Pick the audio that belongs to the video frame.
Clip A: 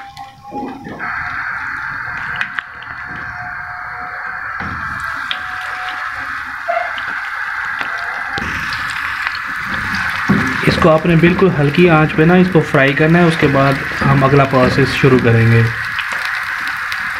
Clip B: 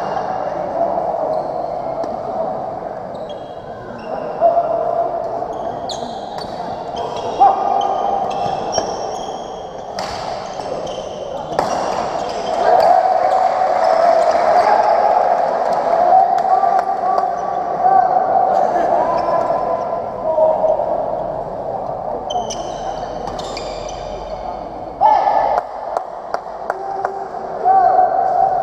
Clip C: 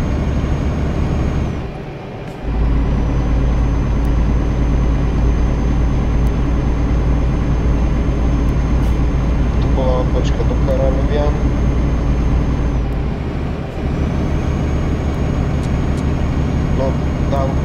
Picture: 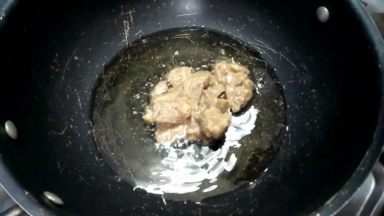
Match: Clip A